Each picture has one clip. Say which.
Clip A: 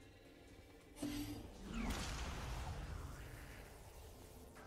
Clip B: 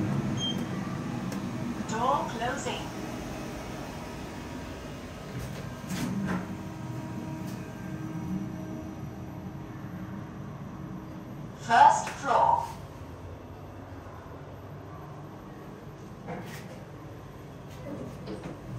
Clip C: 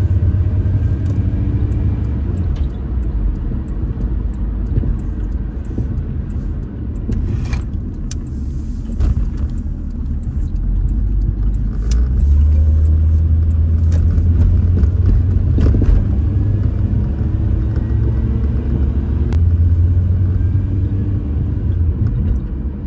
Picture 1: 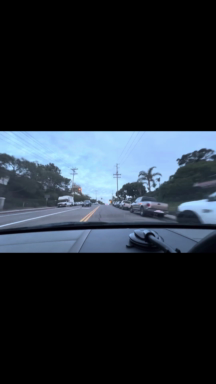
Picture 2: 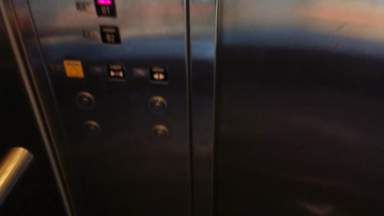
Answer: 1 C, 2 B